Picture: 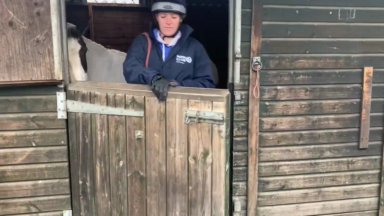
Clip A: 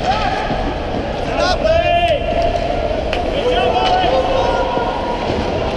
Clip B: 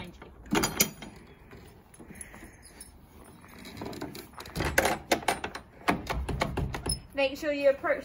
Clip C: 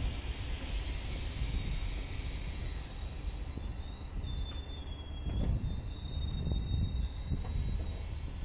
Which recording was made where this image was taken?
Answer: B